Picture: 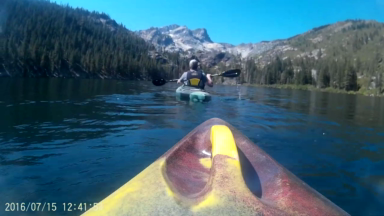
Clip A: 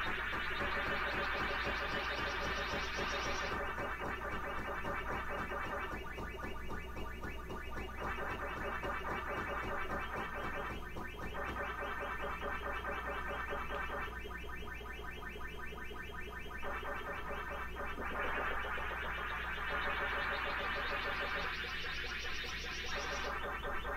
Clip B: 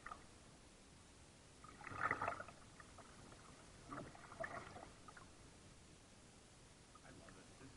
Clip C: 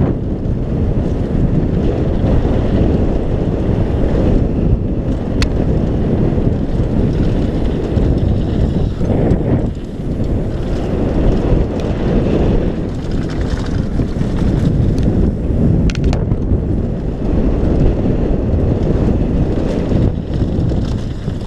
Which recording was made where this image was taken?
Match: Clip B